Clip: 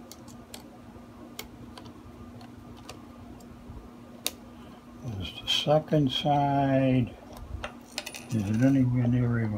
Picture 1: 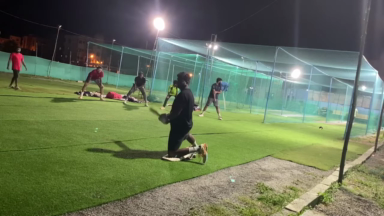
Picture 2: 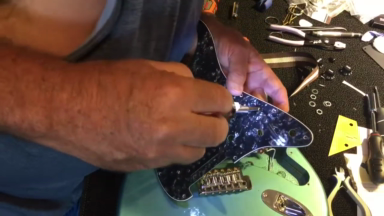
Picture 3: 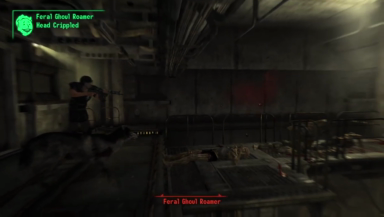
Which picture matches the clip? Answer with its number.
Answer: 2